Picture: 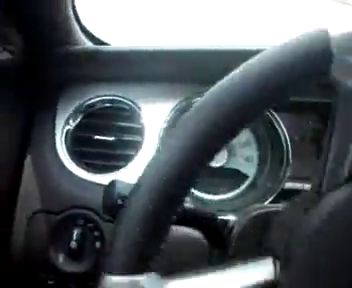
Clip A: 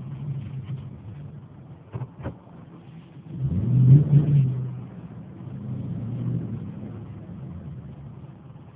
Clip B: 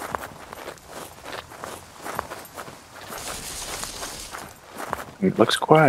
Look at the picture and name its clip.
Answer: A